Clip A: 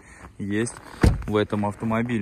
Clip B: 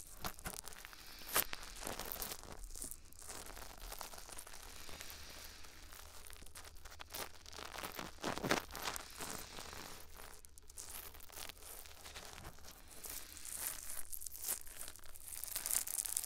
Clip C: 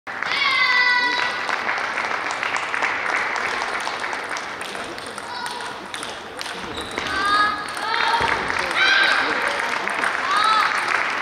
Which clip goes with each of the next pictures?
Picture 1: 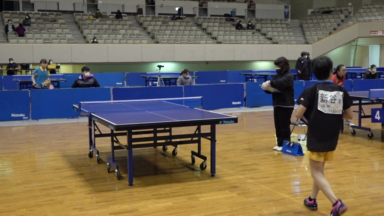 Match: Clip C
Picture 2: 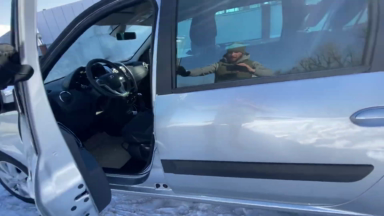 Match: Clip A